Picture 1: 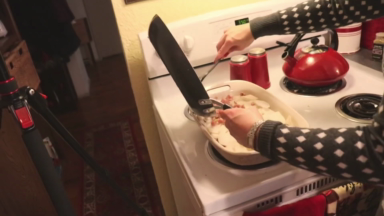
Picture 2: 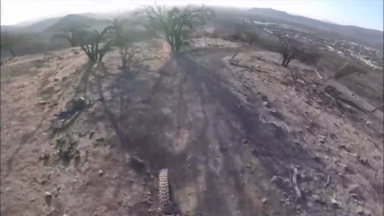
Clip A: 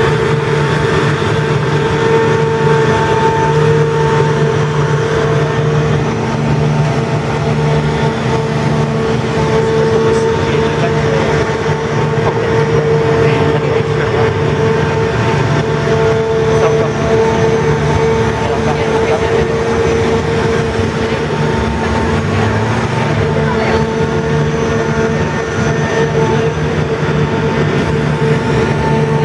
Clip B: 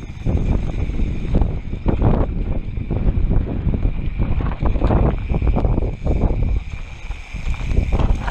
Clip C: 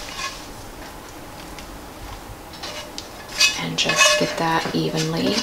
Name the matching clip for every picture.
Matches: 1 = C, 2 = B